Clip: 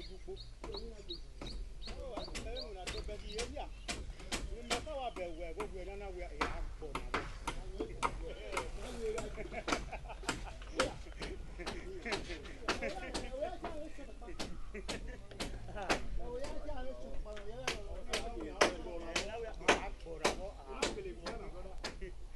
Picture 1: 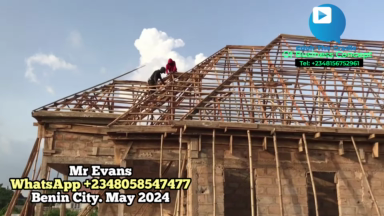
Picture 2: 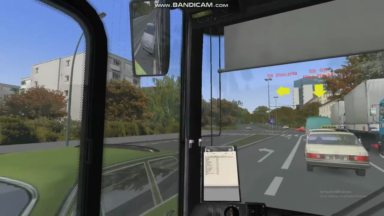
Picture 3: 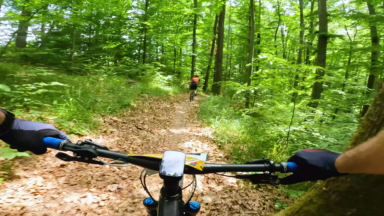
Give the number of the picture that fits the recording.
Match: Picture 1